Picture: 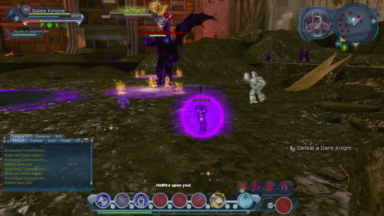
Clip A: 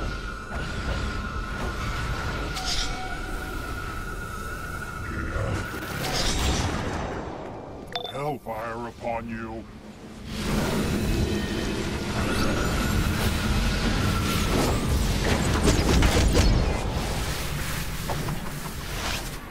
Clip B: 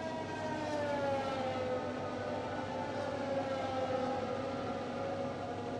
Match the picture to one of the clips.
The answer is A